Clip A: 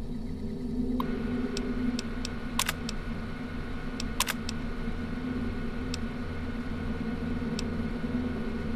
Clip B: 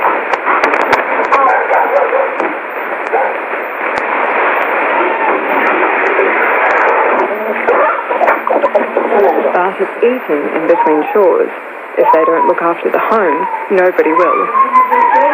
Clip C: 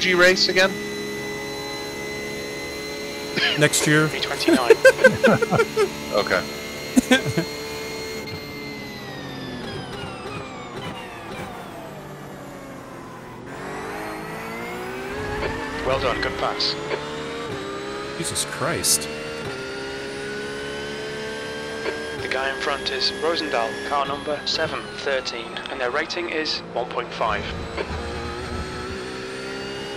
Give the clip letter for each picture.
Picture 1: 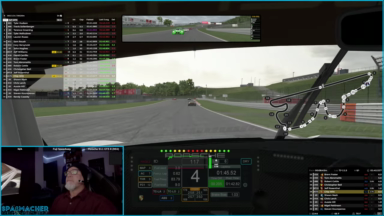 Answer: C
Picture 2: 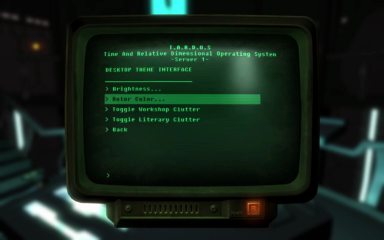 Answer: A